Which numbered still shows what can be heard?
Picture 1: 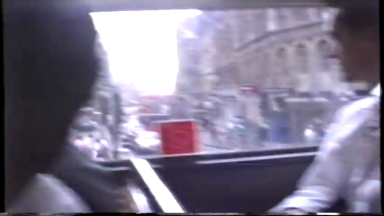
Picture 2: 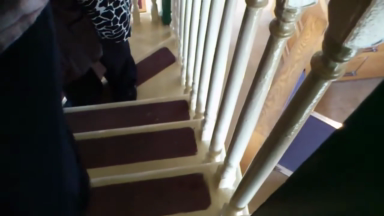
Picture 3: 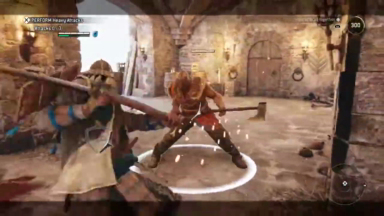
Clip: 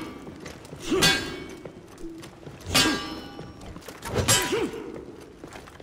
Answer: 3